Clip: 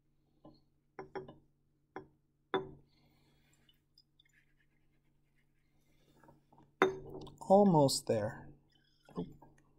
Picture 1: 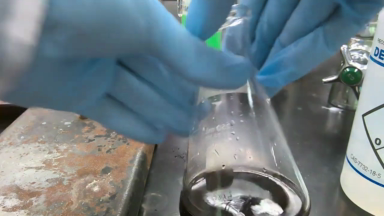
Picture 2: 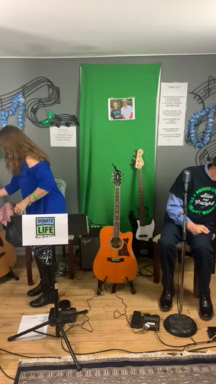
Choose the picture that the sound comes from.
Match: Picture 1